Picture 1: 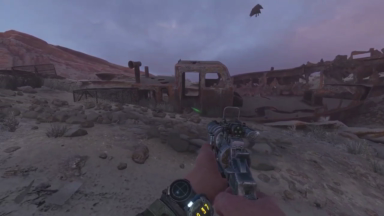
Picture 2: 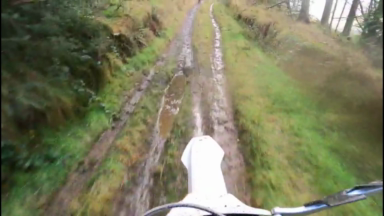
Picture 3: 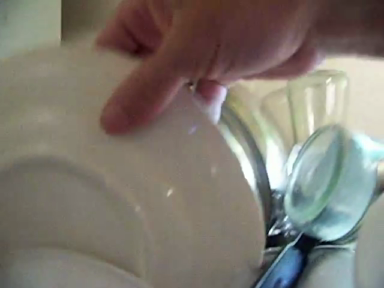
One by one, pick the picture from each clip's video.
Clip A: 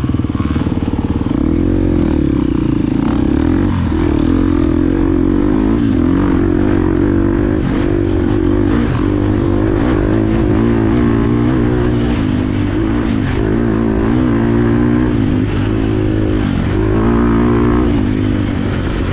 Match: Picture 2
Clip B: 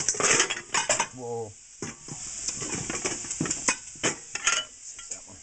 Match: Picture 3